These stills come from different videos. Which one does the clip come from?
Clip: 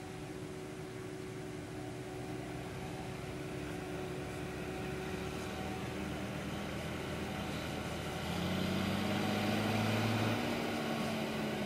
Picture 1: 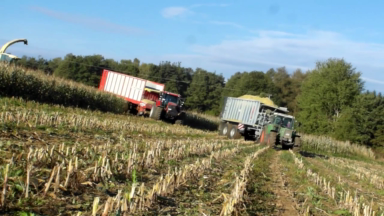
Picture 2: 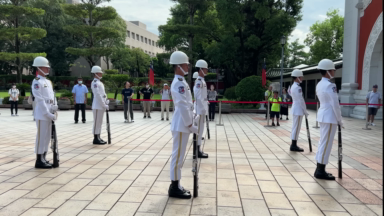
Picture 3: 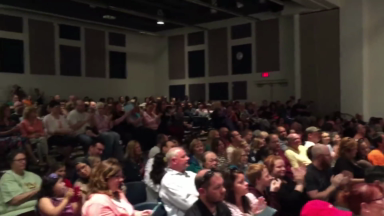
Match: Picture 1